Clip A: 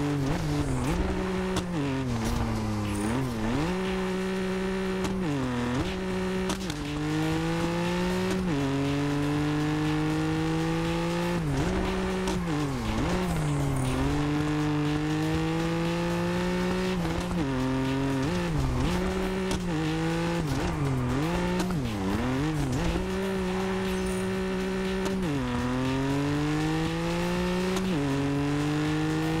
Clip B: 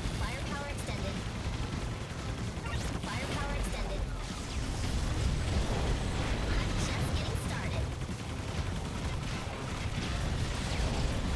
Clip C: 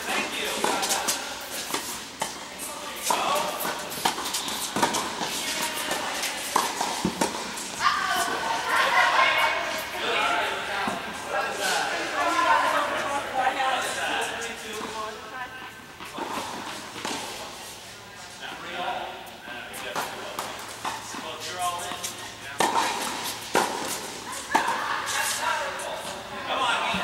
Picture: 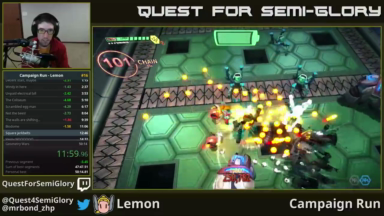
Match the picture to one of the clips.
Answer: B